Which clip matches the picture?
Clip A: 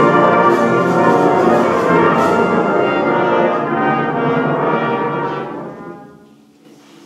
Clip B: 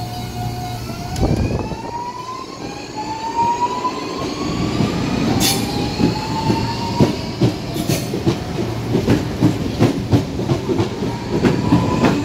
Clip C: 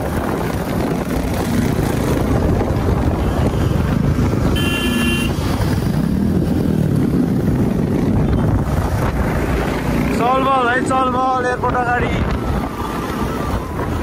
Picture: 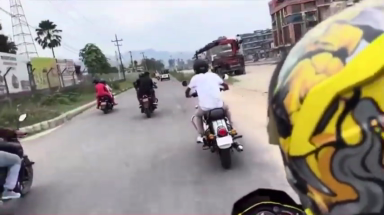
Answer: C